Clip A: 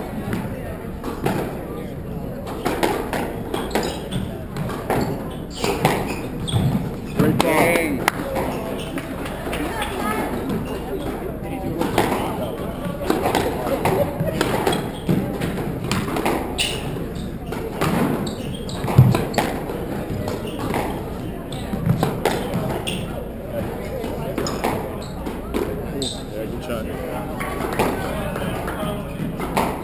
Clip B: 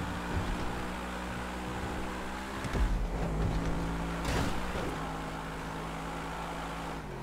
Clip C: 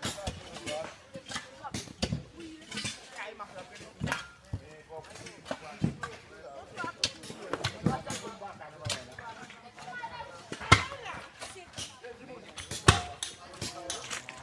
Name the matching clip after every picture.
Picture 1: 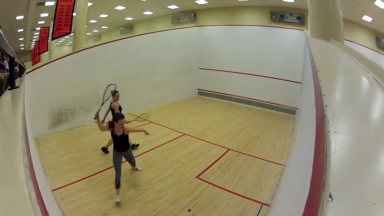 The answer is A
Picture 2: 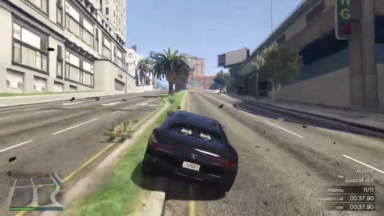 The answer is B